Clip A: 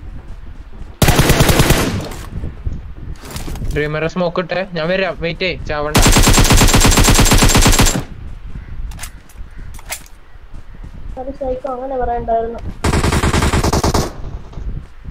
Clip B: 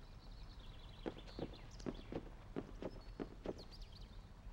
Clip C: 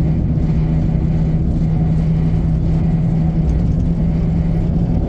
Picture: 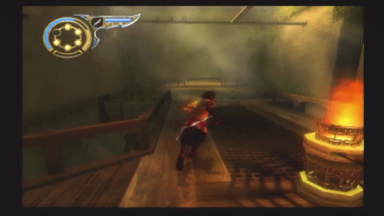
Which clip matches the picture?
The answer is B